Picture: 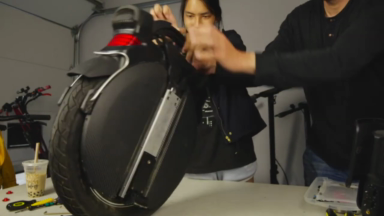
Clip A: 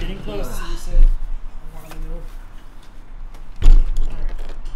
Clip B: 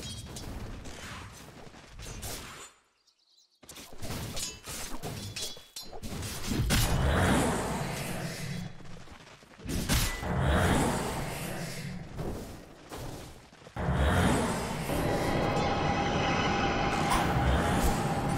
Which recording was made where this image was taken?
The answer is A